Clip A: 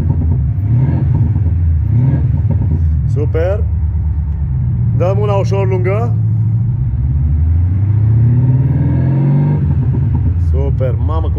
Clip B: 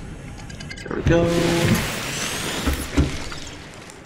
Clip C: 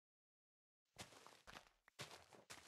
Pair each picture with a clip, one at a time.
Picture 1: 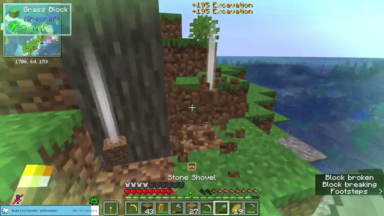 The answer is C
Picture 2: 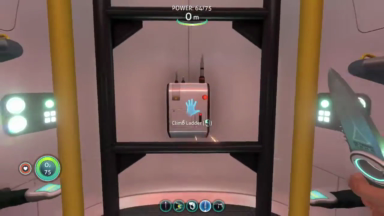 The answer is B